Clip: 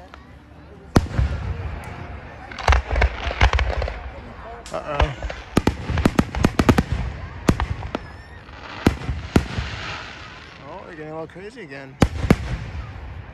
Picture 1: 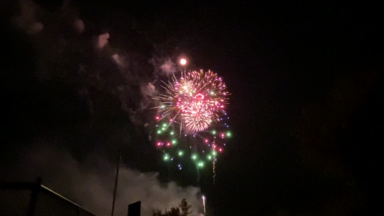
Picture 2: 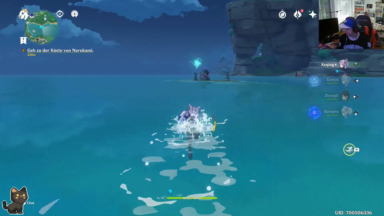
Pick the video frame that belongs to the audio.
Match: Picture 1